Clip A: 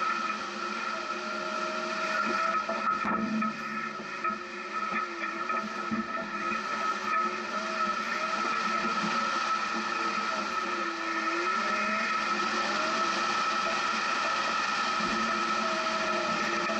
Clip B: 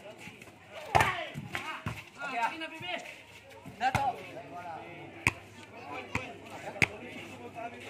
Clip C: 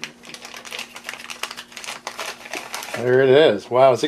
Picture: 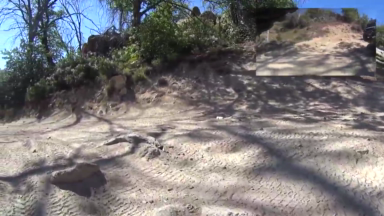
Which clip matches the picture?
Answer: A